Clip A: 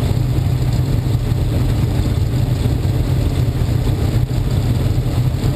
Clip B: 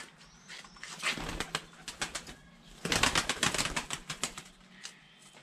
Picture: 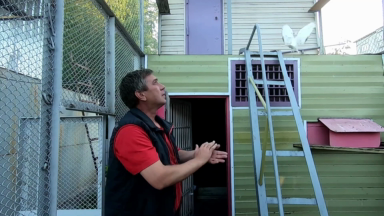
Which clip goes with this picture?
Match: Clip B